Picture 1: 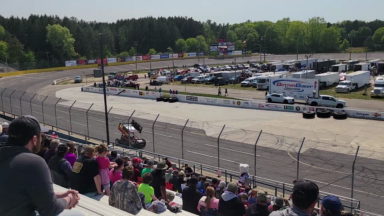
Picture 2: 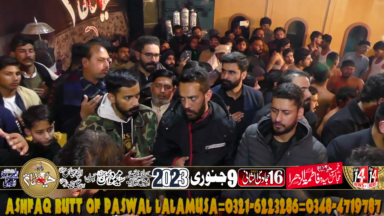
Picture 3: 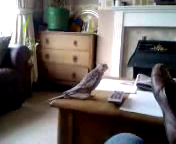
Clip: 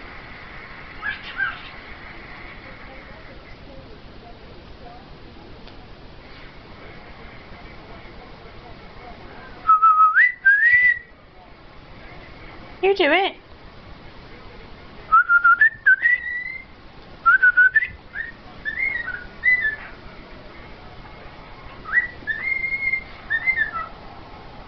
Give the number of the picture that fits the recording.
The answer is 3